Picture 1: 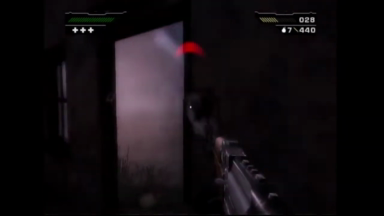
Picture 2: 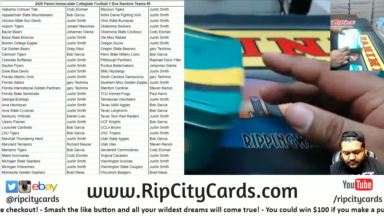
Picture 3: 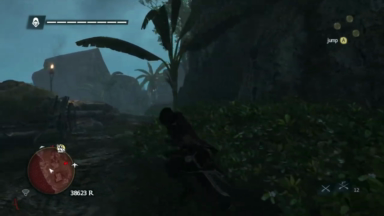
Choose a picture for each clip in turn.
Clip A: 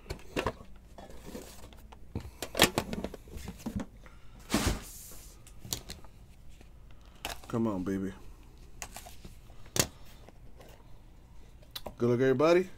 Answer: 2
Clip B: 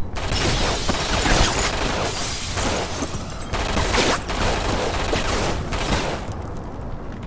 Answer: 1